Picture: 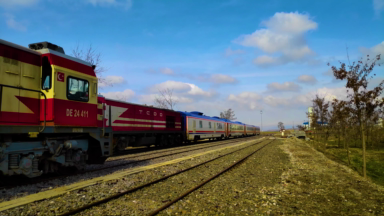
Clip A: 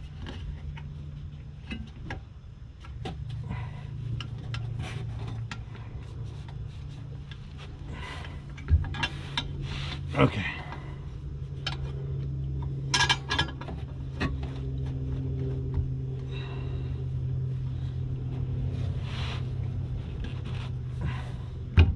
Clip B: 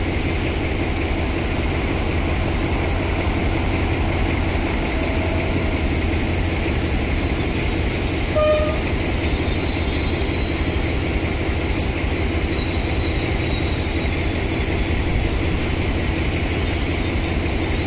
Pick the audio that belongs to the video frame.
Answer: B